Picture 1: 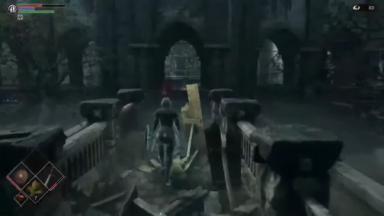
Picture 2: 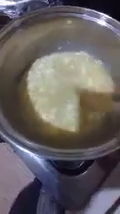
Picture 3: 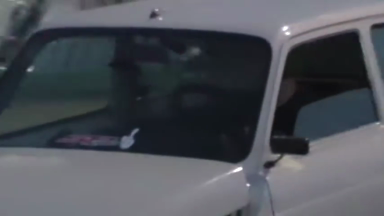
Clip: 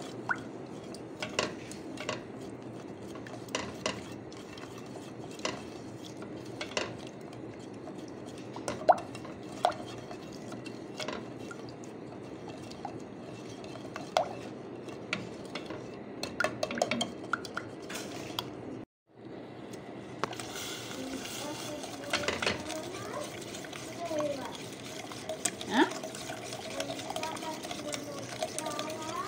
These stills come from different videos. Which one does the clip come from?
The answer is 2